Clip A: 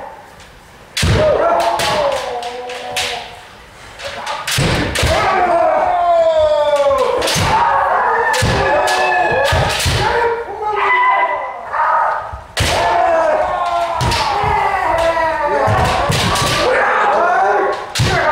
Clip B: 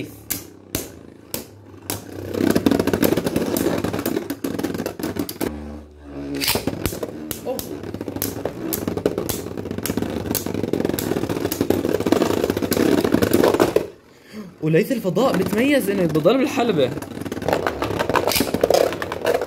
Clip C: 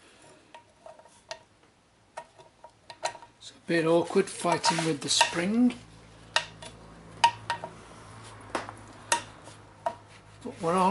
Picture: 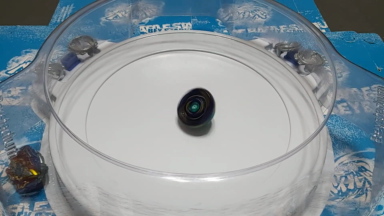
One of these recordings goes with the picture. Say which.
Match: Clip B